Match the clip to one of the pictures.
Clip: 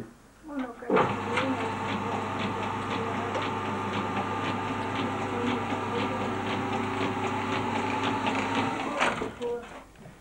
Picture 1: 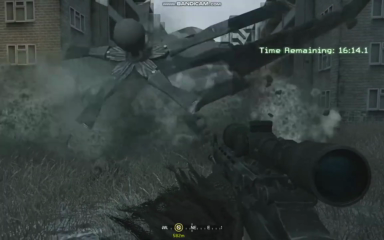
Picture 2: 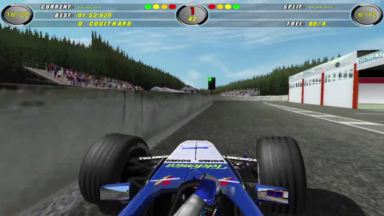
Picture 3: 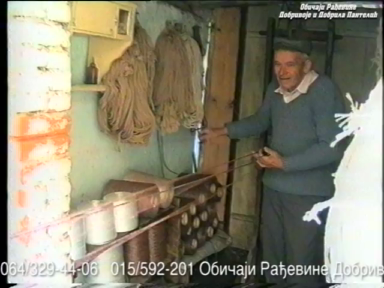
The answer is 3